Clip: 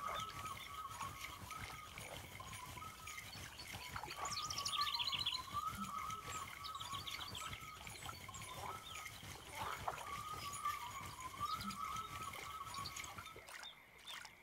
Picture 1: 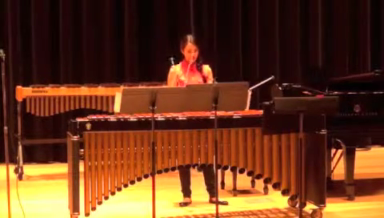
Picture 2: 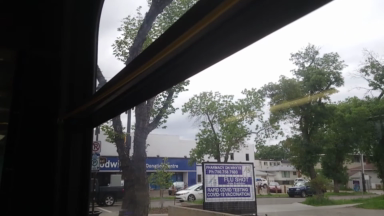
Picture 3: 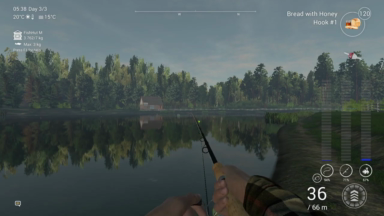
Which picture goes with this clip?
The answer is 3